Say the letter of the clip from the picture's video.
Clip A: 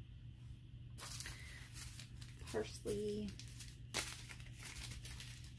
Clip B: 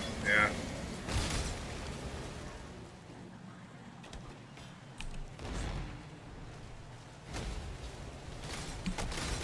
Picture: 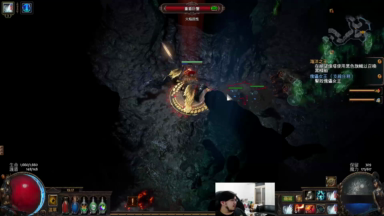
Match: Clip B